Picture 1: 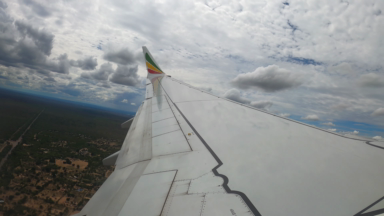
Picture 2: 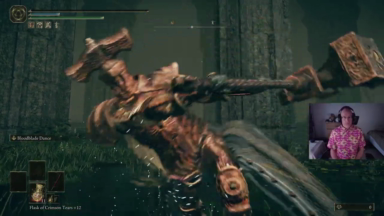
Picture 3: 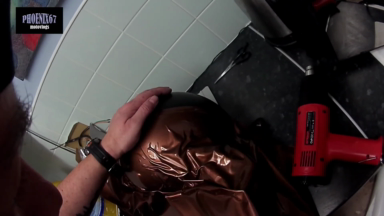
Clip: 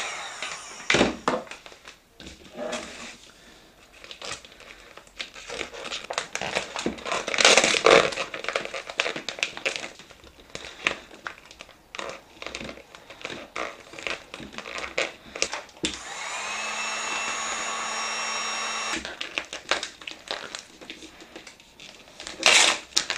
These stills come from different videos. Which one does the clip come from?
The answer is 3